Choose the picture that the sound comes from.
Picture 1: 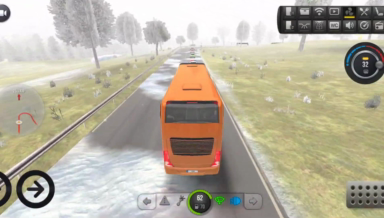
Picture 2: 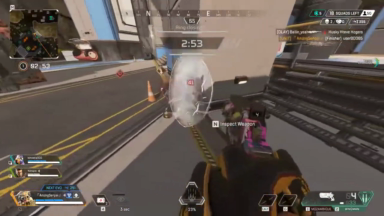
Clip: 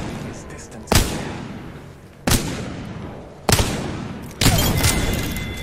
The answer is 2